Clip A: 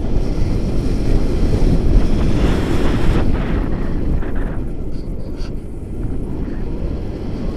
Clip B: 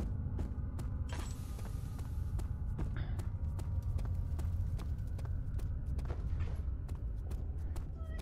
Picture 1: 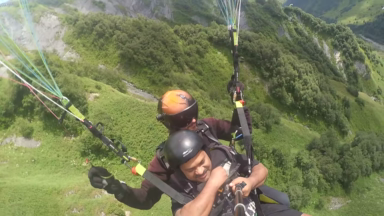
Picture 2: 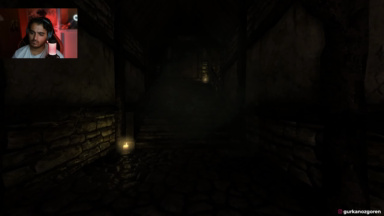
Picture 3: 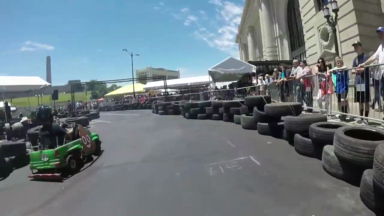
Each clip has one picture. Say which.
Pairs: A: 1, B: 2